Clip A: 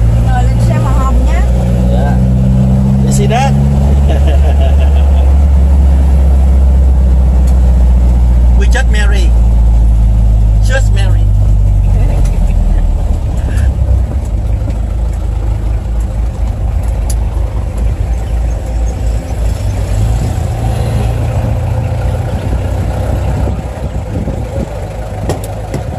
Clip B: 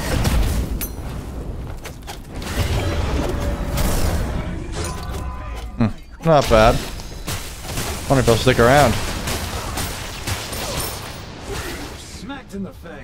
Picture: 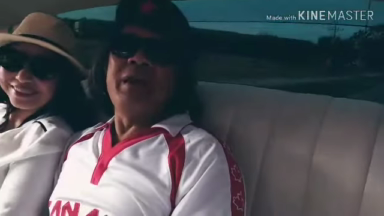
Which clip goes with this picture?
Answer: A